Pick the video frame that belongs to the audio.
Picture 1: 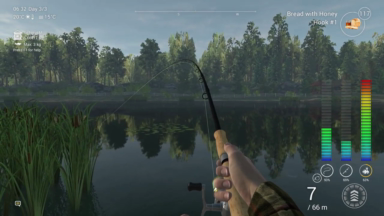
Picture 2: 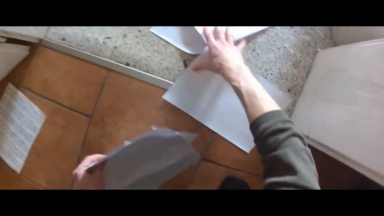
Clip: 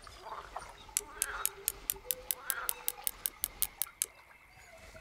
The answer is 1